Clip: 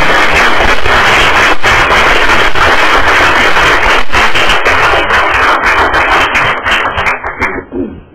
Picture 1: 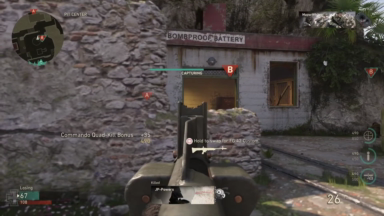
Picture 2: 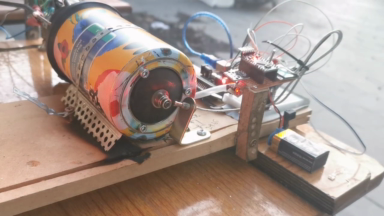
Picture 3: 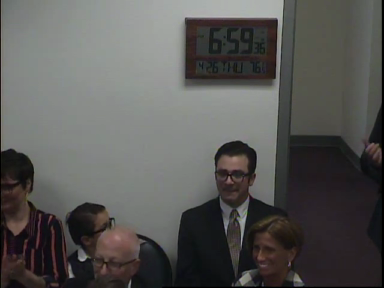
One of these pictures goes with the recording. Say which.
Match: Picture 3